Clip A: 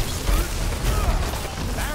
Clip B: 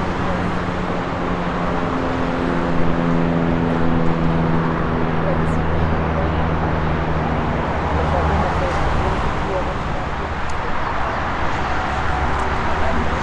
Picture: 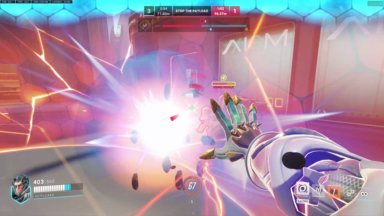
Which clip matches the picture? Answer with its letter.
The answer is A